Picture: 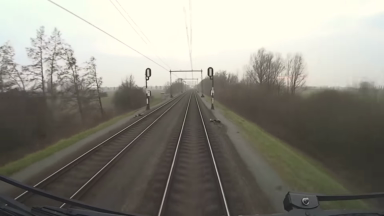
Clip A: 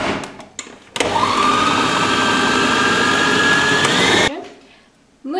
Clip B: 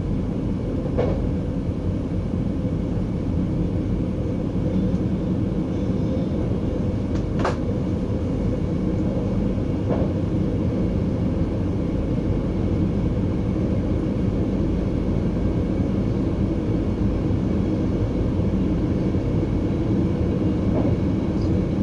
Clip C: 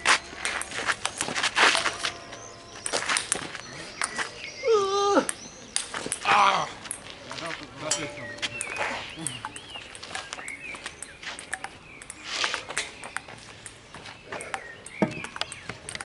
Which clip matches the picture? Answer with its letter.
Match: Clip B